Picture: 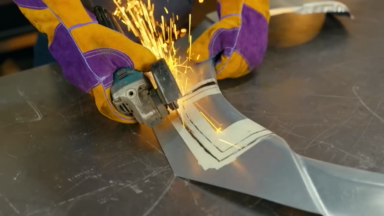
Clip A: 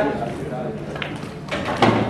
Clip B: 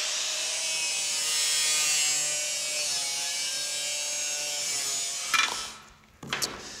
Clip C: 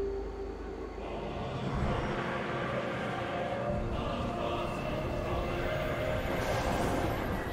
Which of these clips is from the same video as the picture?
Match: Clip B